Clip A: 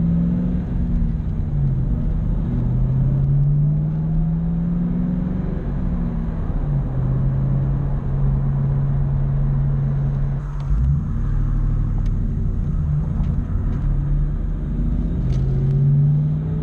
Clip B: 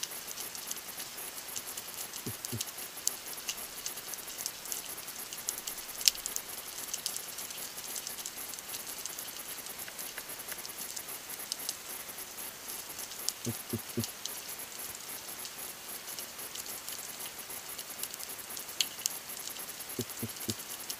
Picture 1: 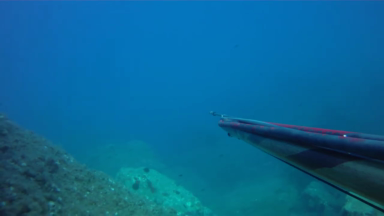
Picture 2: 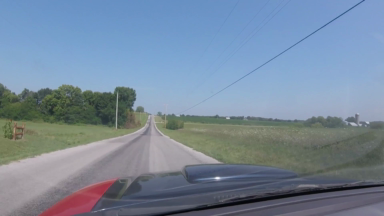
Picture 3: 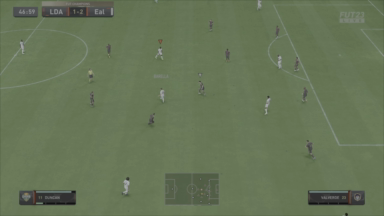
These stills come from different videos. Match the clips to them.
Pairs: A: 2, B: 1